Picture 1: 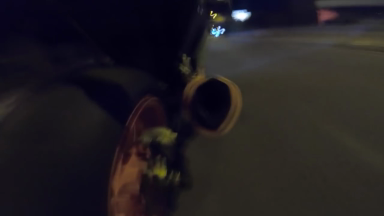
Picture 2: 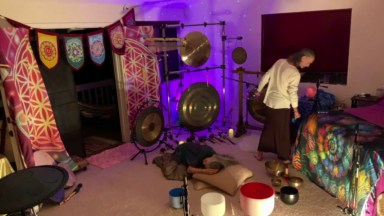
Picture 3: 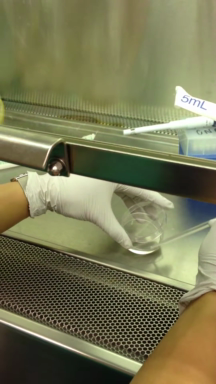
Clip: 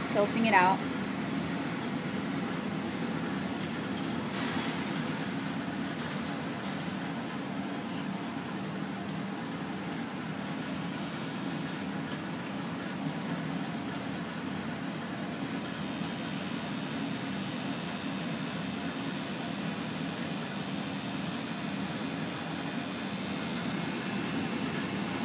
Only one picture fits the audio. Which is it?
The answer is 3